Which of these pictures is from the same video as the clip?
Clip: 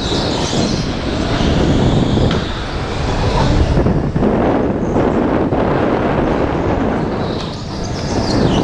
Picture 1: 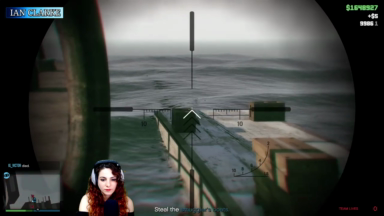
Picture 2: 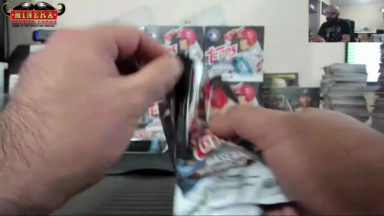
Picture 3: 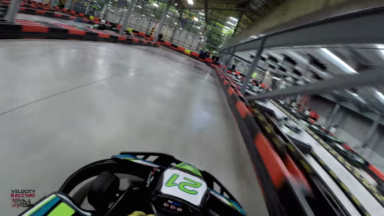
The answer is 3